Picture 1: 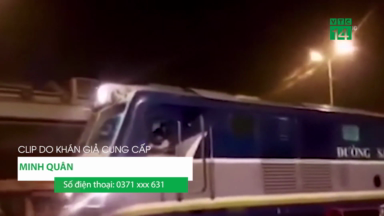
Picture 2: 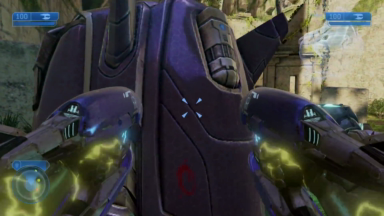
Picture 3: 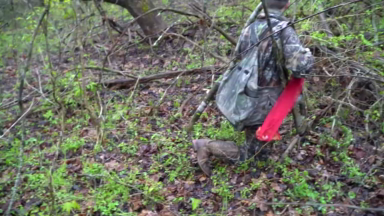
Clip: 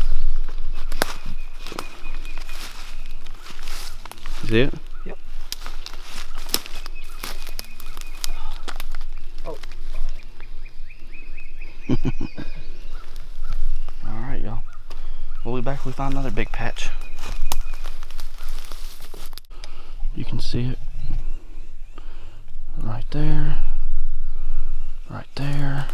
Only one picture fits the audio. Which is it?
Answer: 3